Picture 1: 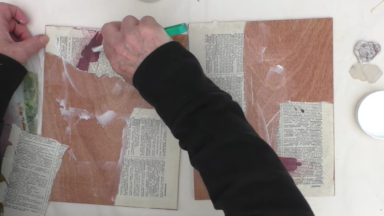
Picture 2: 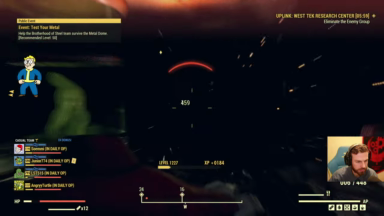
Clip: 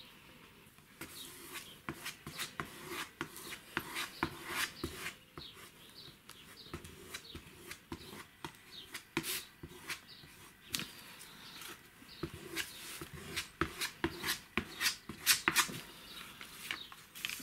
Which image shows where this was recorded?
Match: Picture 1